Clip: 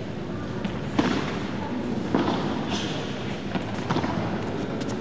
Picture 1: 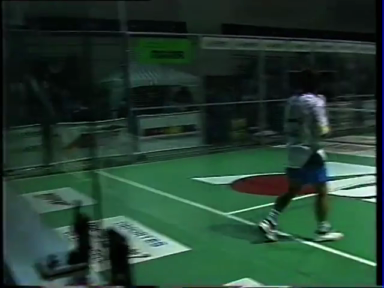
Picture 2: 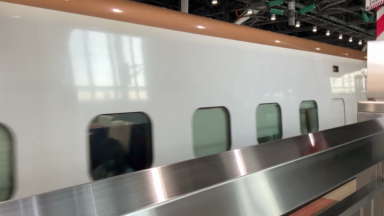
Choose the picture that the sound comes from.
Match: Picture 1